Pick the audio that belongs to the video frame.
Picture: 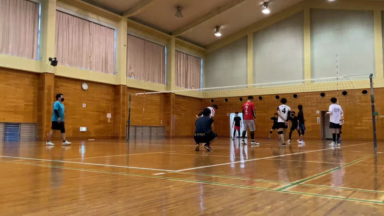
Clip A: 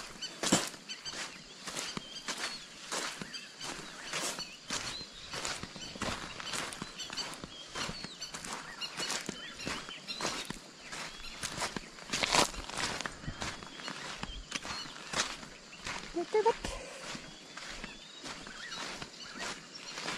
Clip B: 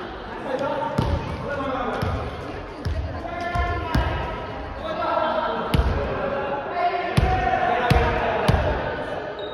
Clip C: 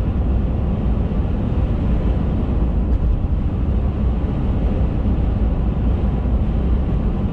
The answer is B